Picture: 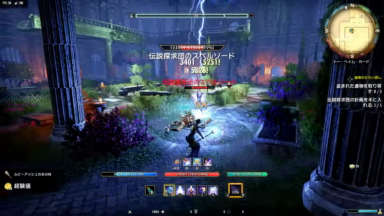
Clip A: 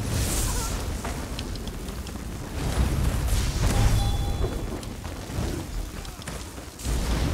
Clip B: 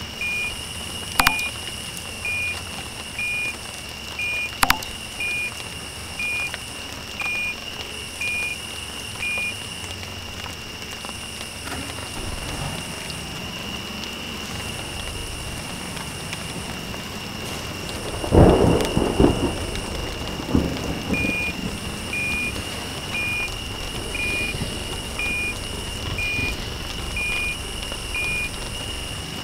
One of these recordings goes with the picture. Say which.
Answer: A